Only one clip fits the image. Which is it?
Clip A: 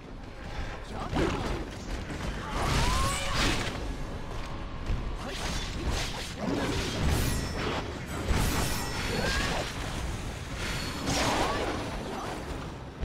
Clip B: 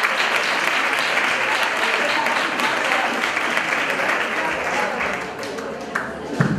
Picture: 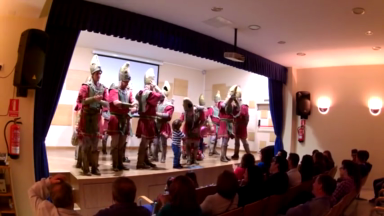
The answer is B